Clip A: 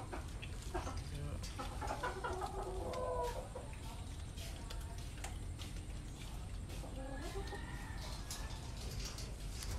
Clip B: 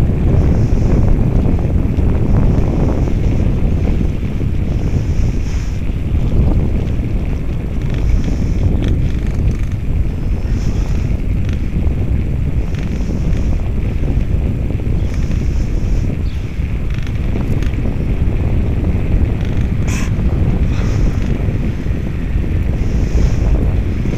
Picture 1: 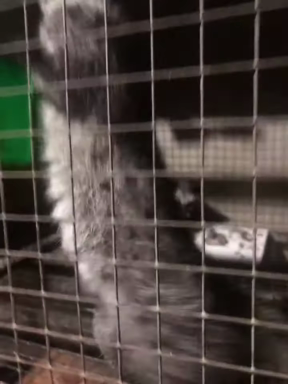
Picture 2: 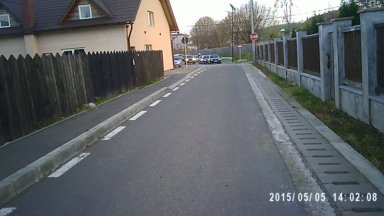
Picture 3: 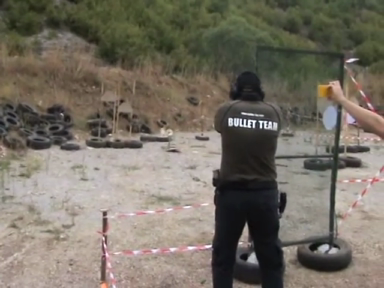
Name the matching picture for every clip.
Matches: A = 1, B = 2